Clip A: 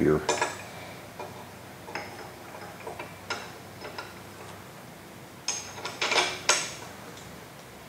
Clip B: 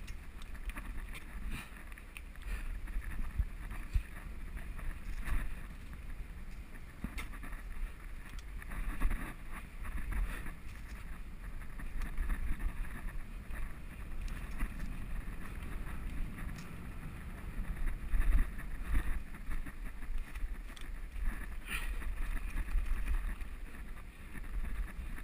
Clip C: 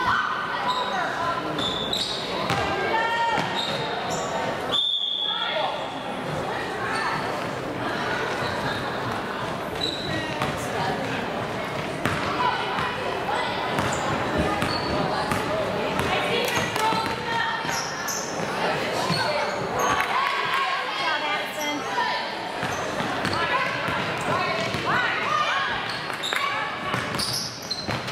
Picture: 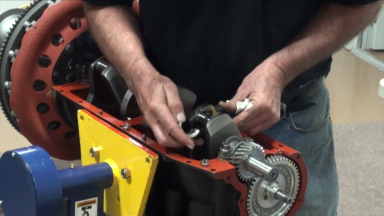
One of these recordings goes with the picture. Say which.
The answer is A